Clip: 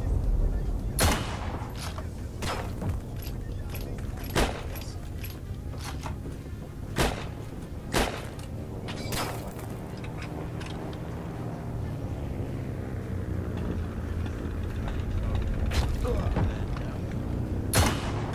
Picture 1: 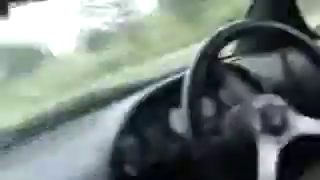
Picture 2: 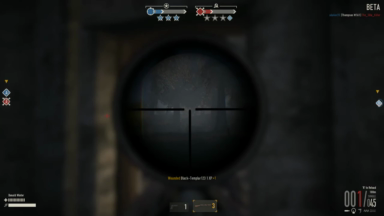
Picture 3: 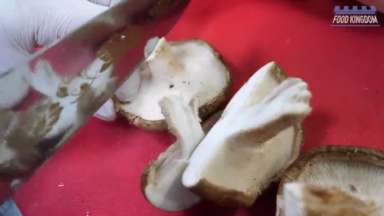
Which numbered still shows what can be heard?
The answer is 2